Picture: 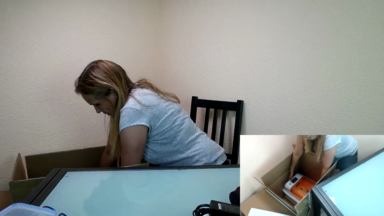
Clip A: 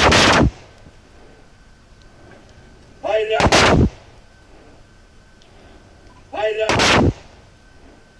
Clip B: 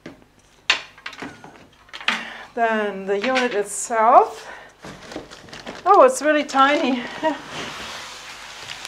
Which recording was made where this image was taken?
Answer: B